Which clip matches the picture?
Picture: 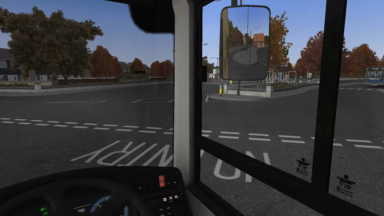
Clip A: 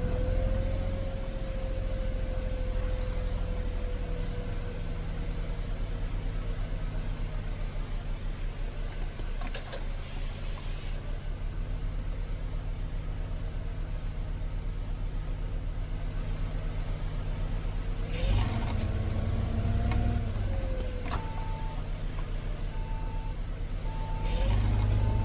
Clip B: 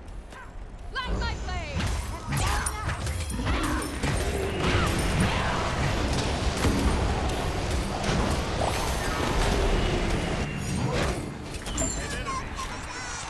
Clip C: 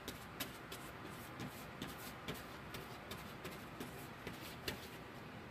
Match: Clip A